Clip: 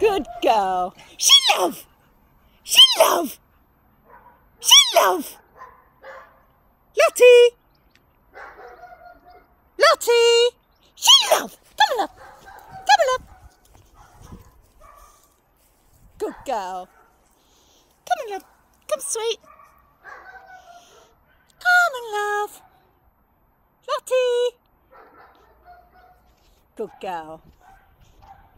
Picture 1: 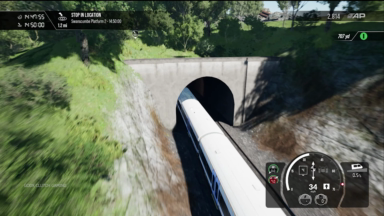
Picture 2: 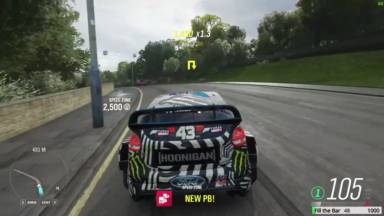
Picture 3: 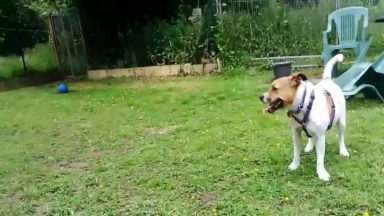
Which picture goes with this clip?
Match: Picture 3